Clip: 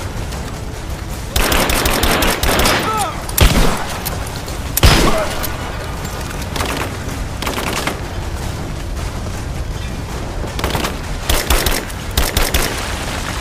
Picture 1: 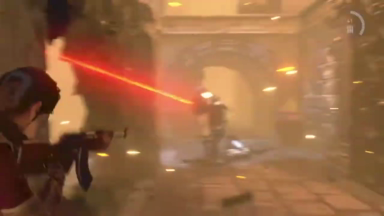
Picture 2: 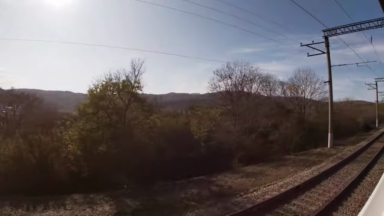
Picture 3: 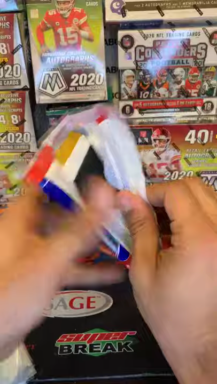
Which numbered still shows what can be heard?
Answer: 1